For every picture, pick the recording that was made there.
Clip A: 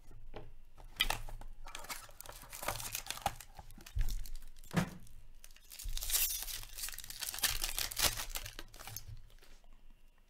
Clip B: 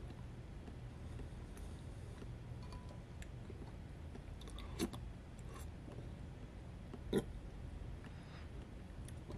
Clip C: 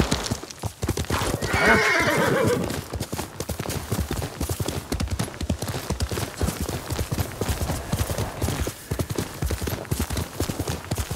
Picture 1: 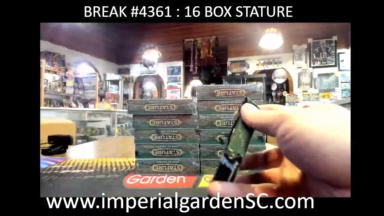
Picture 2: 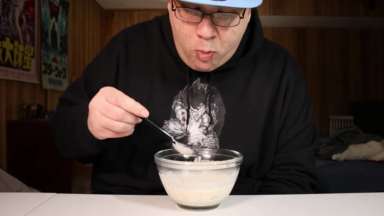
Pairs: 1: A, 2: B